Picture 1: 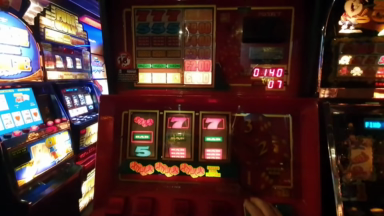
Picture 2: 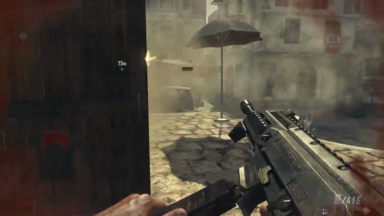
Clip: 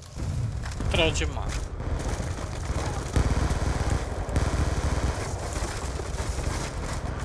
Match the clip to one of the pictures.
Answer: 2